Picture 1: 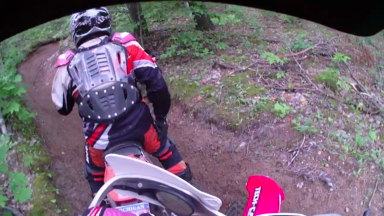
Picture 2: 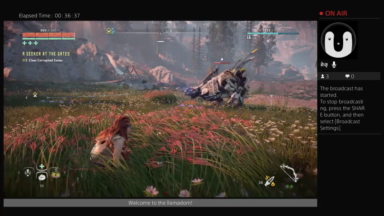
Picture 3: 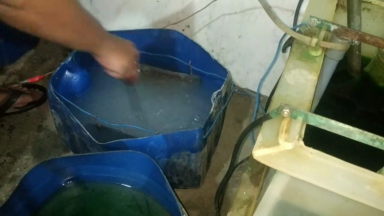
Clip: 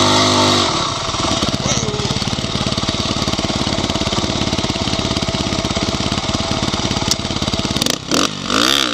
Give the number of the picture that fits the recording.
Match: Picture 1